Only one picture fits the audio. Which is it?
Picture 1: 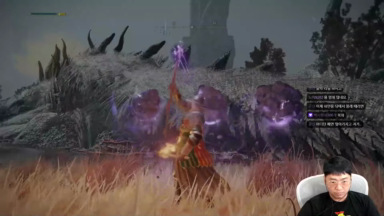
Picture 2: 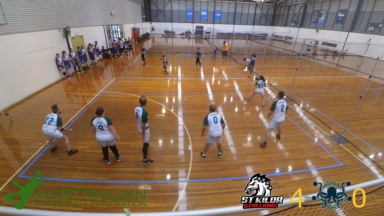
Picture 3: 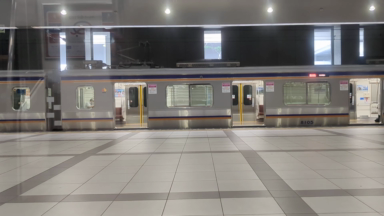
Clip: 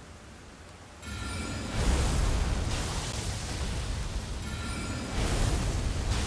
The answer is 1